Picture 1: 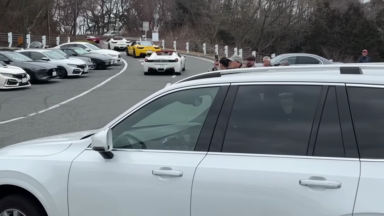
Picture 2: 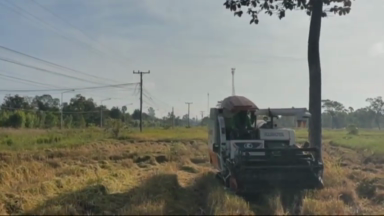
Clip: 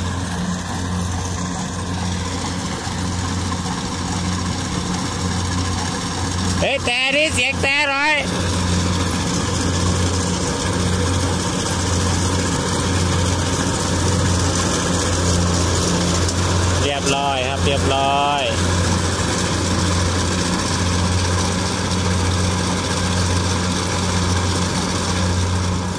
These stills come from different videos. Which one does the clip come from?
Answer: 2